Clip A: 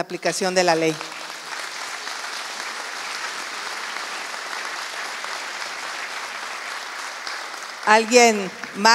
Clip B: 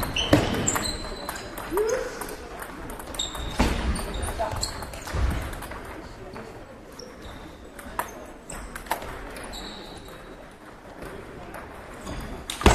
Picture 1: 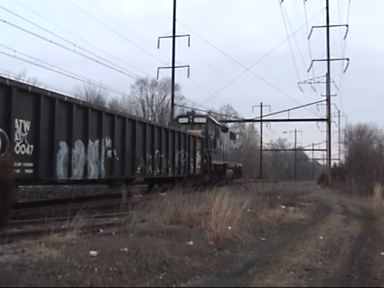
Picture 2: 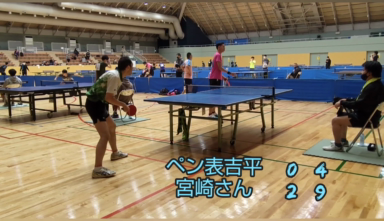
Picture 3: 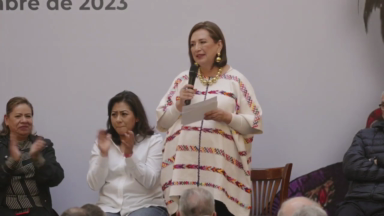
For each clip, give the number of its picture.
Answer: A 3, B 2